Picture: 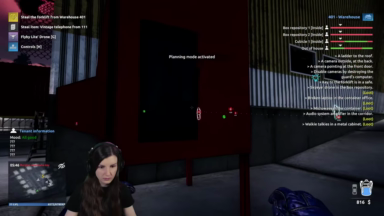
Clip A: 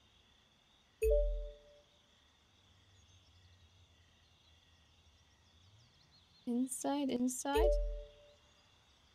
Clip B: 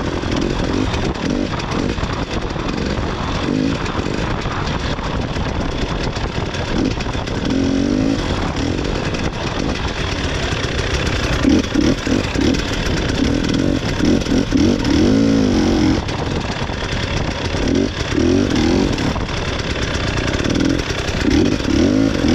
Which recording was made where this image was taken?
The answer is A